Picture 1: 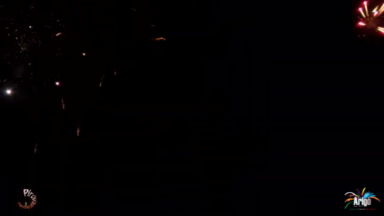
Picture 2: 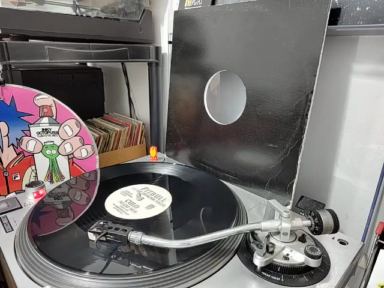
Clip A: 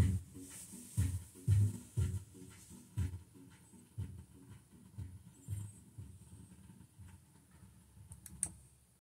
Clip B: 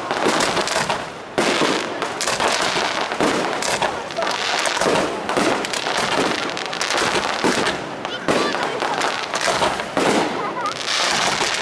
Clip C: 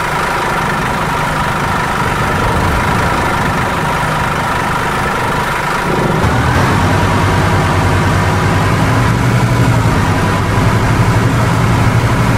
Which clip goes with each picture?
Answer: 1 B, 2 A